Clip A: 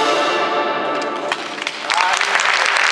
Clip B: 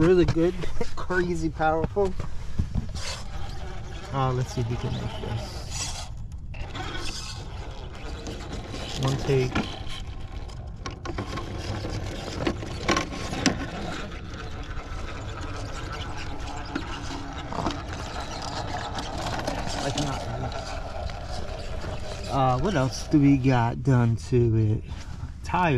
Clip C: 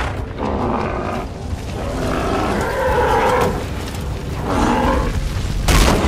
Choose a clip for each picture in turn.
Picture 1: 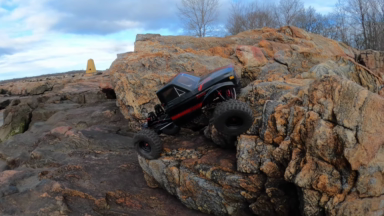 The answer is B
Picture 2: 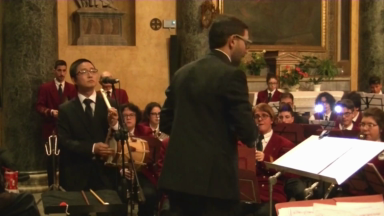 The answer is A